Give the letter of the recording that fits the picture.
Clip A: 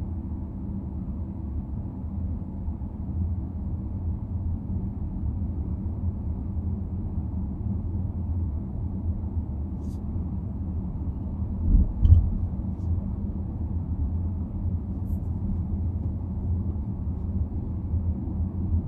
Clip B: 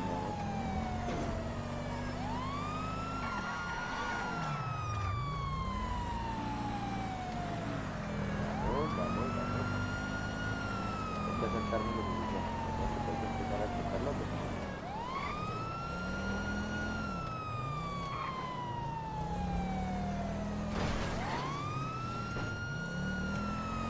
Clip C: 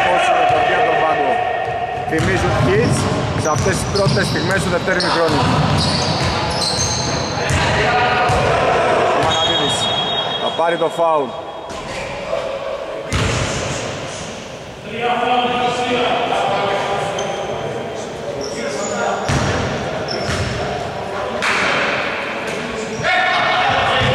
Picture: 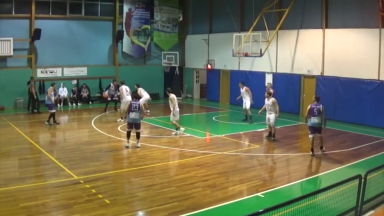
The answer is C